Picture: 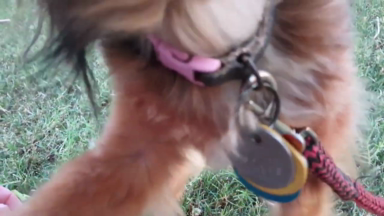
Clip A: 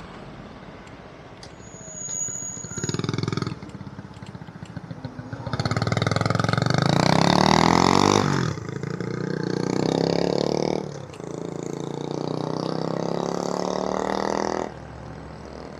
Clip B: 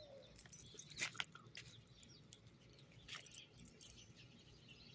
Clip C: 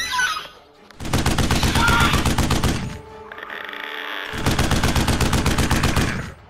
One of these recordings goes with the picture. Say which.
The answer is B